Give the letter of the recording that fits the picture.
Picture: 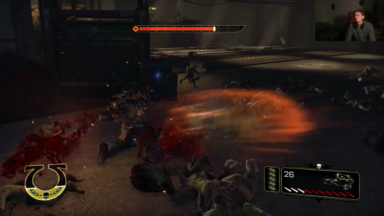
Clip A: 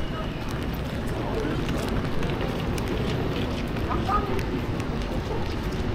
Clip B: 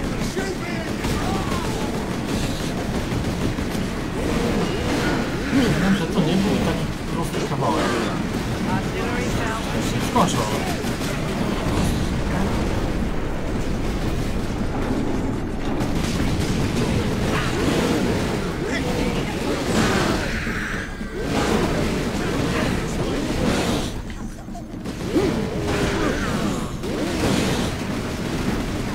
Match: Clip B